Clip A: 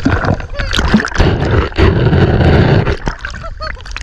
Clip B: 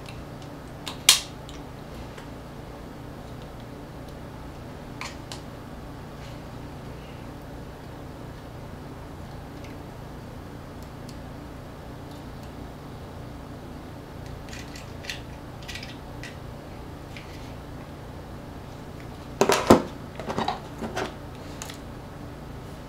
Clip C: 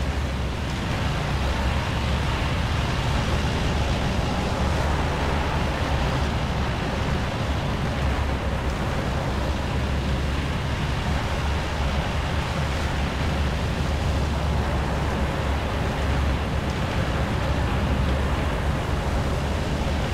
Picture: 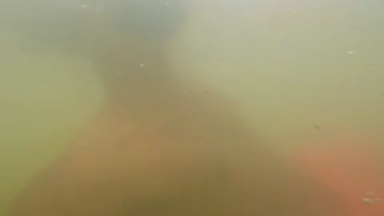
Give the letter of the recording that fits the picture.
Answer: A